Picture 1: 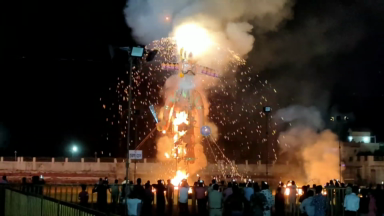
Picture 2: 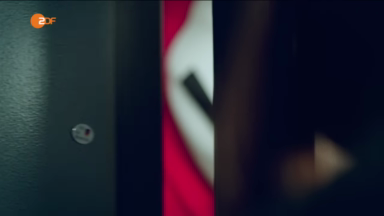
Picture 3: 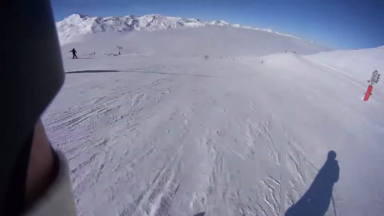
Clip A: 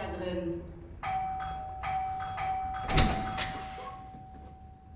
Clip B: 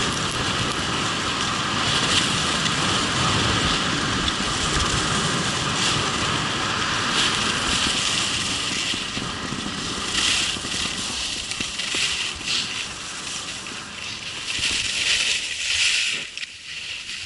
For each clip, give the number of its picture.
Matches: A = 2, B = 3